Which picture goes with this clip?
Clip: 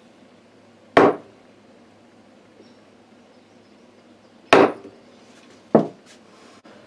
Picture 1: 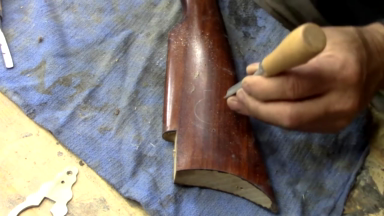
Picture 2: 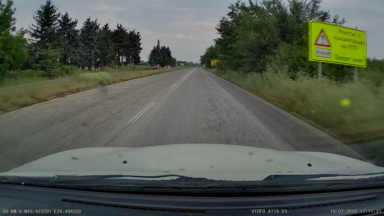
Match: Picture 1